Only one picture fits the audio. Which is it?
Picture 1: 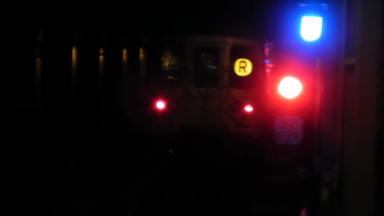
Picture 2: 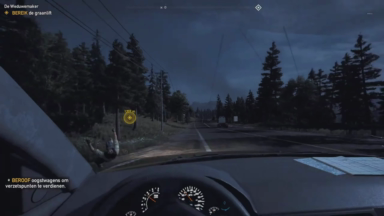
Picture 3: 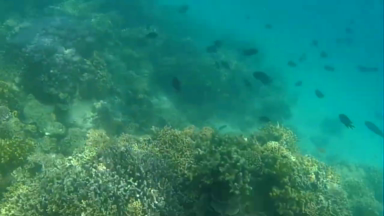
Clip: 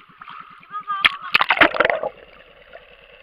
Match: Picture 3